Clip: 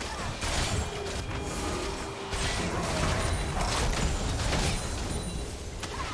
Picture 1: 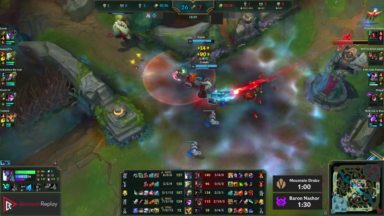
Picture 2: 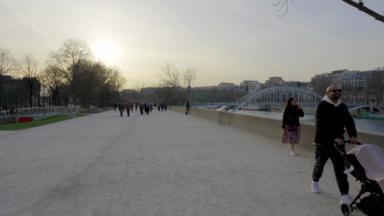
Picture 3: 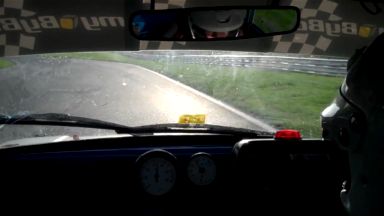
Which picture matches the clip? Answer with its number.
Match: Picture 1